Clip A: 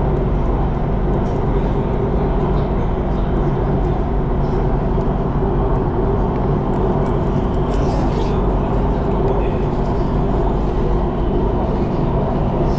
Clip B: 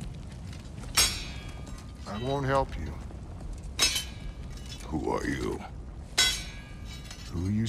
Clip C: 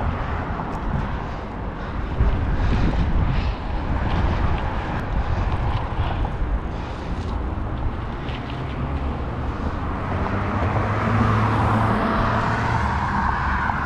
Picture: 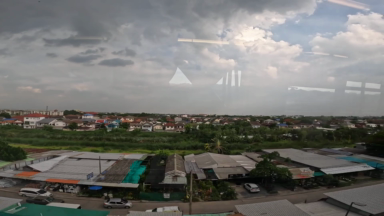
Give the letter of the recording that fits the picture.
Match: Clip A